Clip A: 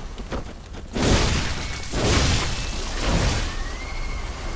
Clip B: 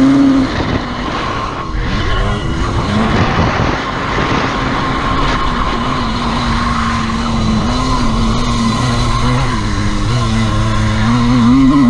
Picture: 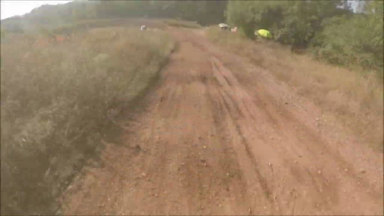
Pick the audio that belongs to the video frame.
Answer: B